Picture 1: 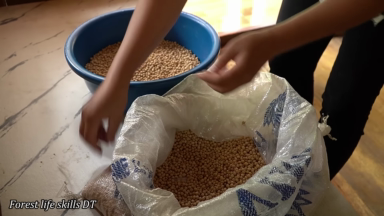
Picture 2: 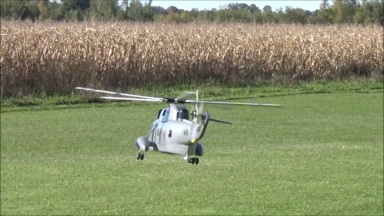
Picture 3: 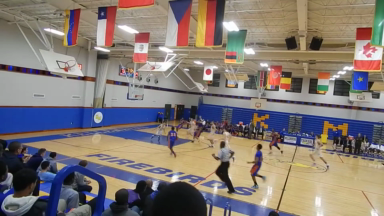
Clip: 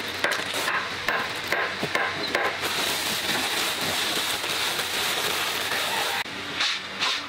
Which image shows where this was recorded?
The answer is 1